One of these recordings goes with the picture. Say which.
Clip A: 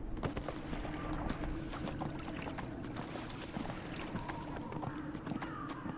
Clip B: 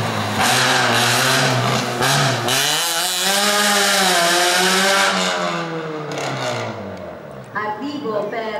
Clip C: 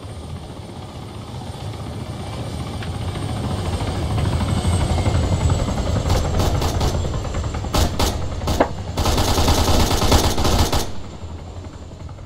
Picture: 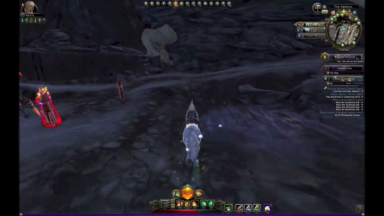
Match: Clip A